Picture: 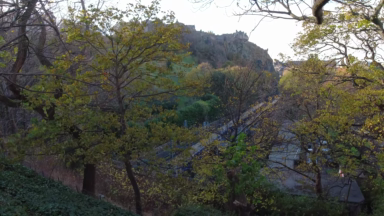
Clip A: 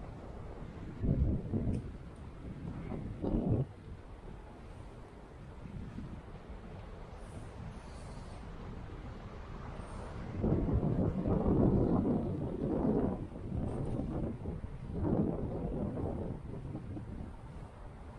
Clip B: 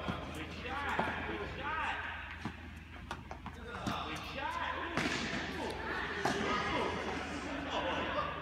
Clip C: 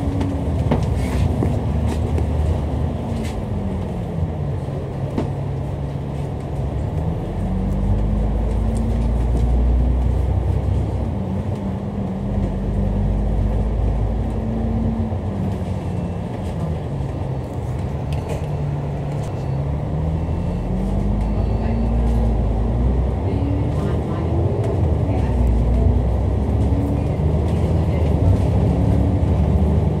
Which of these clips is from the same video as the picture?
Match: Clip A